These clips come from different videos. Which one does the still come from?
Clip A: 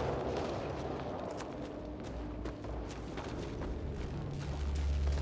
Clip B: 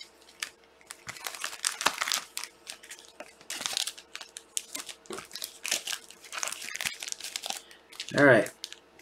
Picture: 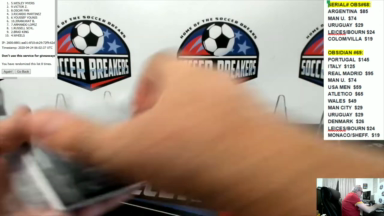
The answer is B